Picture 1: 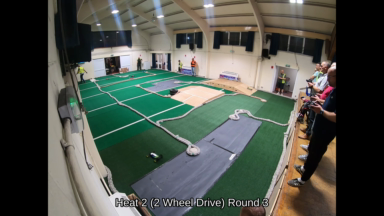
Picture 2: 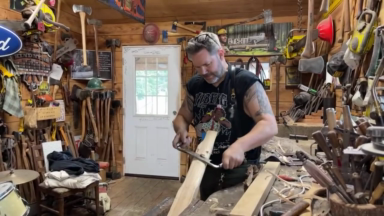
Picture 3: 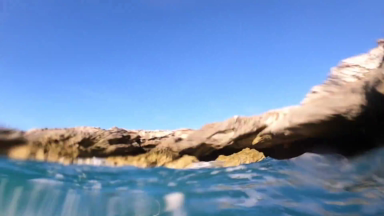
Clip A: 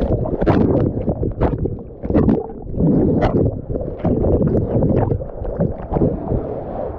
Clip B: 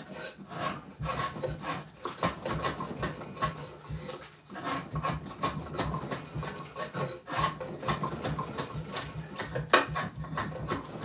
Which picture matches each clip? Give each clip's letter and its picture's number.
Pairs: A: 3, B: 2